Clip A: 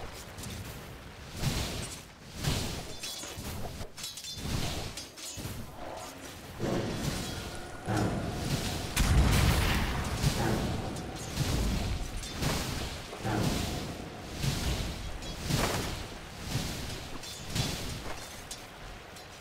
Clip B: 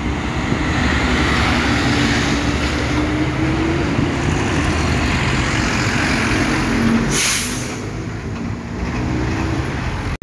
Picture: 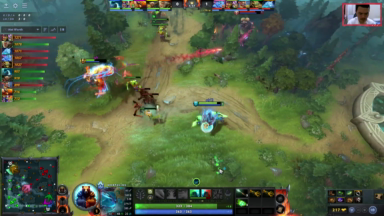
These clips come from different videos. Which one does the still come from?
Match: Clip A